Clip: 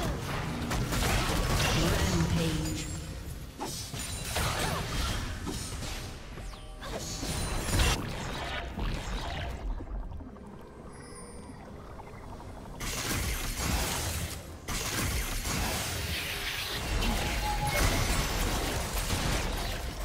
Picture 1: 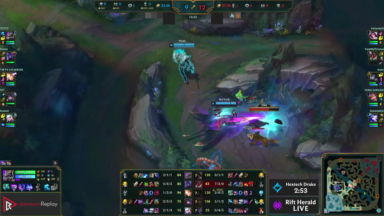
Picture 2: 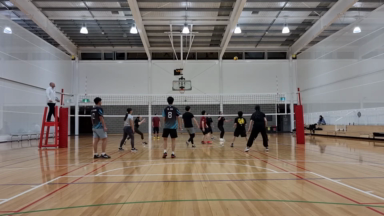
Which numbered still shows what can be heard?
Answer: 1